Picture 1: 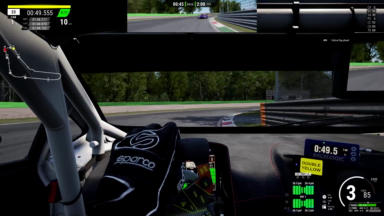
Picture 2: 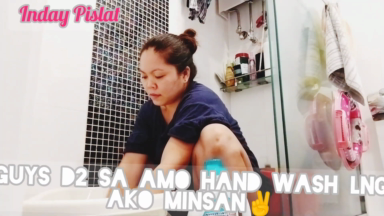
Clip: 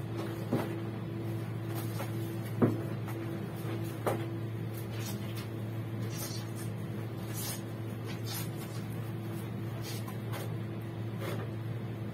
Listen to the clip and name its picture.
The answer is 2